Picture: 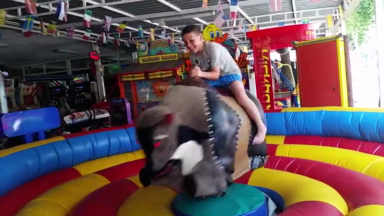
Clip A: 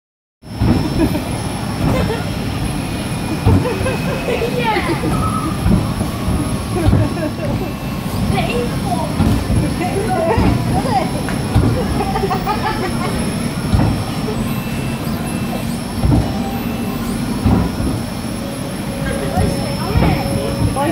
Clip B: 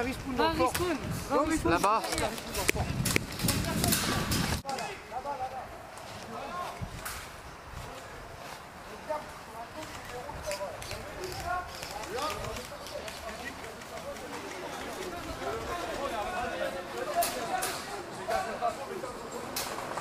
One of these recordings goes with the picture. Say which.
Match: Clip A